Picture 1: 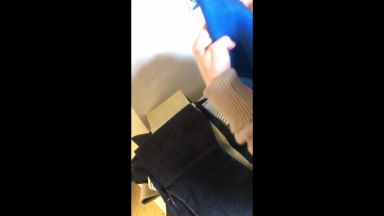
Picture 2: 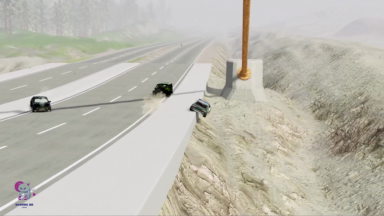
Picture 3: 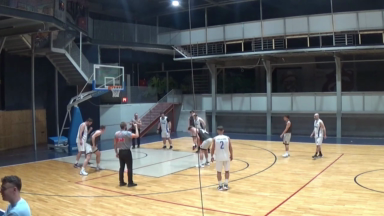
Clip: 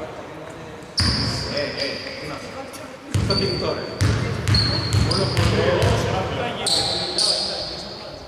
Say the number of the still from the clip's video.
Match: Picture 3